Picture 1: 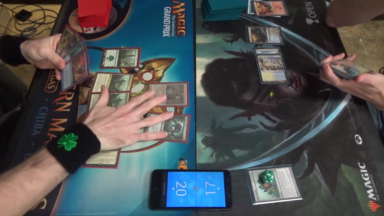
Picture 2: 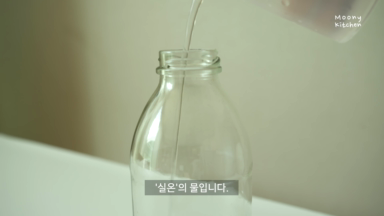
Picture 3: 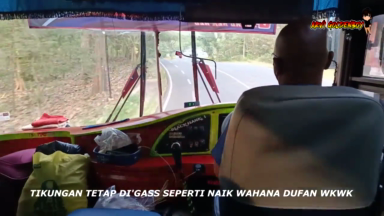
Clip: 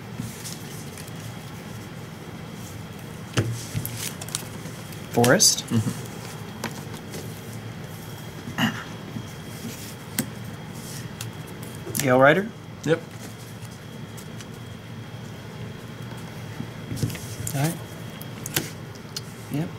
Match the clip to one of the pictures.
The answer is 1